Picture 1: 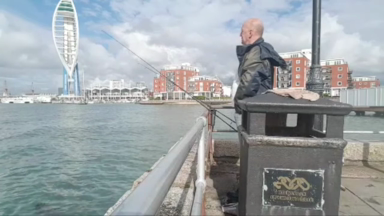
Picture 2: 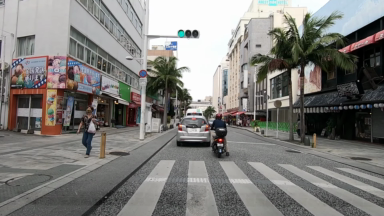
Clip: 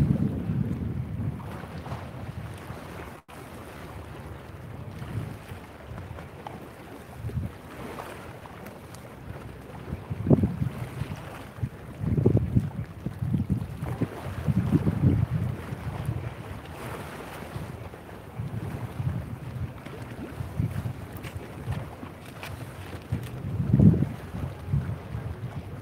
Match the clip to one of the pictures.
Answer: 1